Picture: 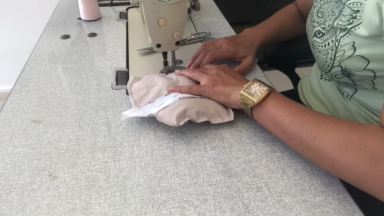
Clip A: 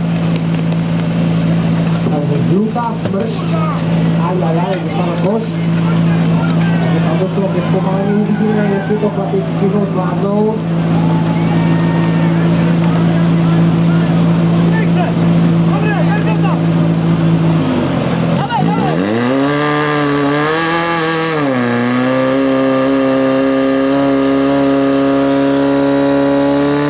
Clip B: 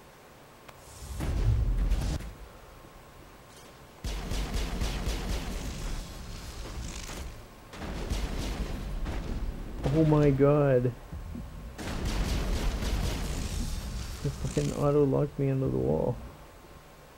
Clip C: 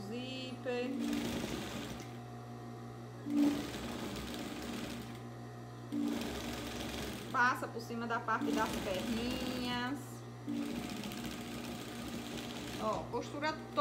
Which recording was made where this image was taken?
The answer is C